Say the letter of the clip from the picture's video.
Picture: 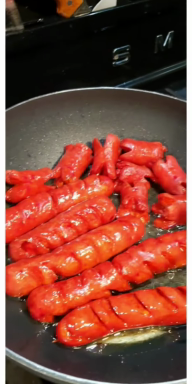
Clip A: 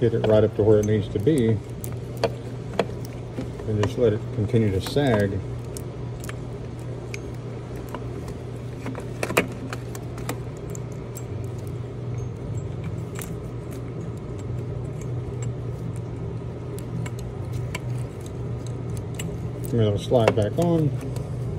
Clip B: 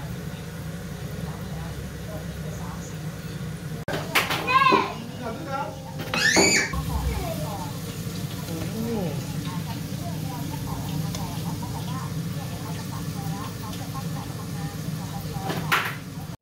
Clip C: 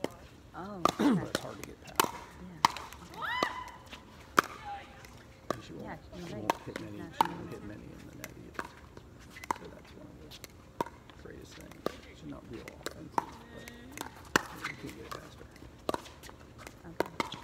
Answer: B